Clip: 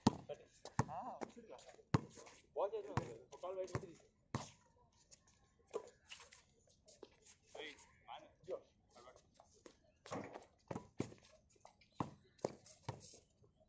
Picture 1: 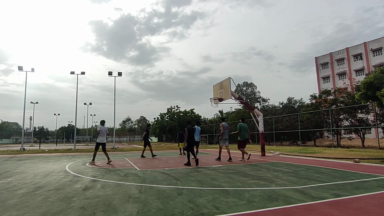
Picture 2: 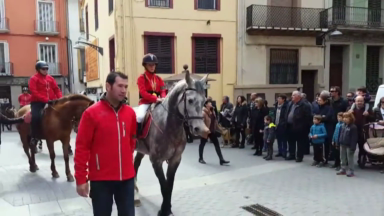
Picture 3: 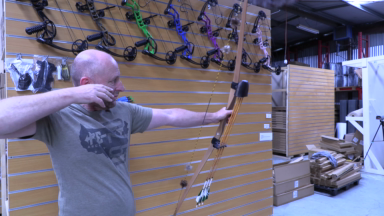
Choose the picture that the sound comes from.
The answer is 1